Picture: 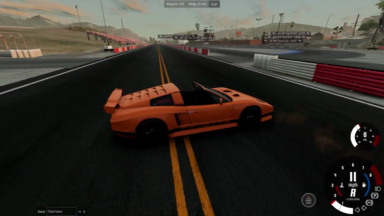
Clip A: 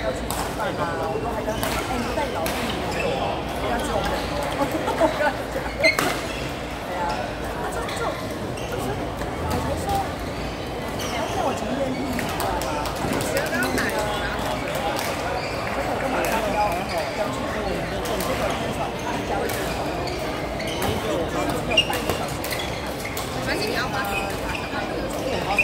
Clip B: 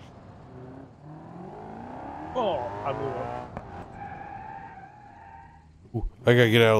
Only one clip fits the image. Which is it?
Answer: B